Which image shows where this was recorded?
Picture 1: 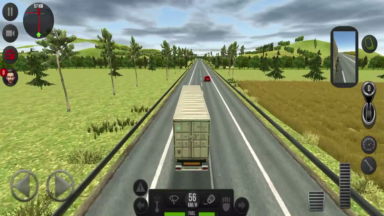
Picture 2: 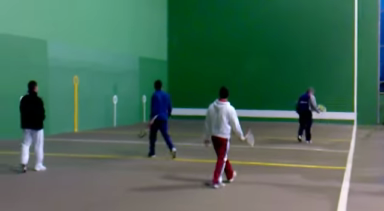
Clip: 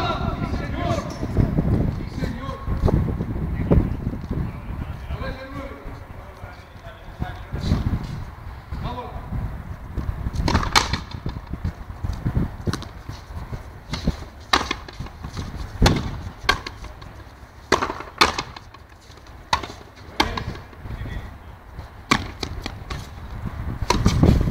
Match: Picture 2